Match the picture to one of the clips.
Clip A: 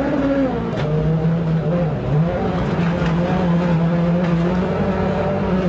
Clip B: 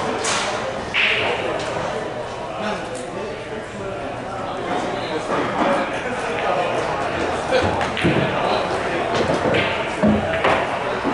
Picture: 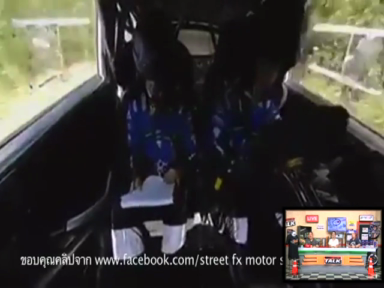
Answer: A